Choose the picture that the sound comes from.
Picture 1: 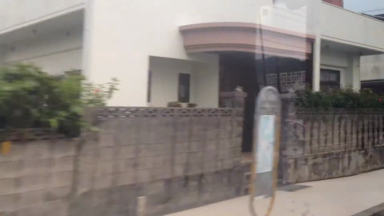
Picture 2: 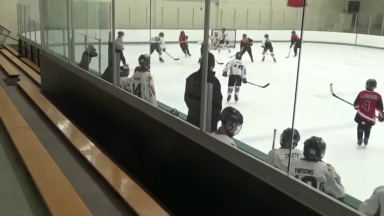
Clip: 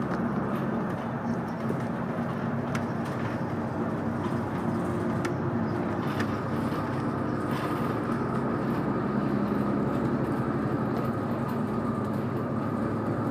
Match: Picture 1